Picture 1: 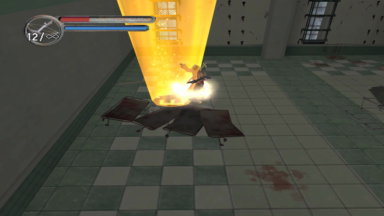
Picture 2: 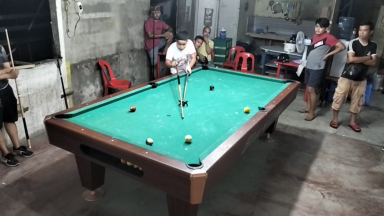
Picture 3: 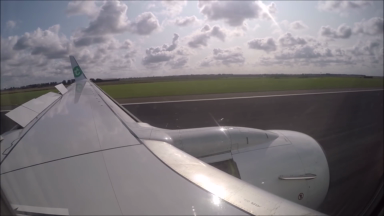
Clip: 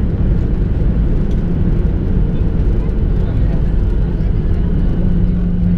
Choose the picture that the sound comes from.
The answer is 3